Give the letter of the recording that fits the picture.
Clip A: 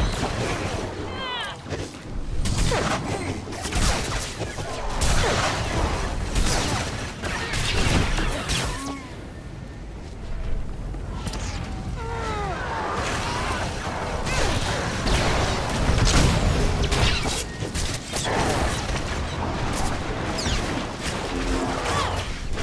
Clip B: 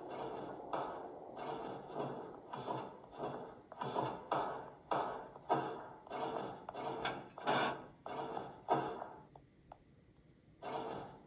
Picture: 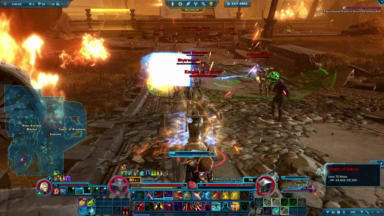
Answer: A